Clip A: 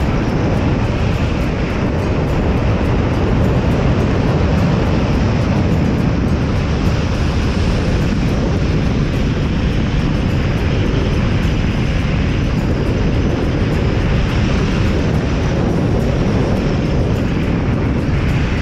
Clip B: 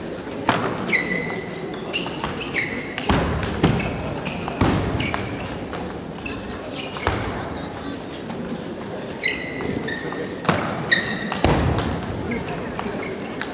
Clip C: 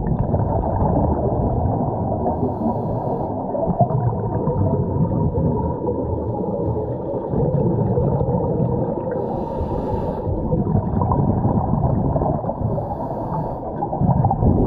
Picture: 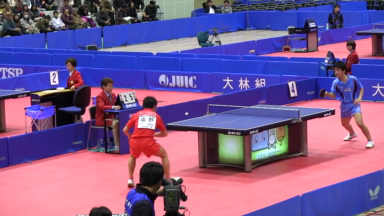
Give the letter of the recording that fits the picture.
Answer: B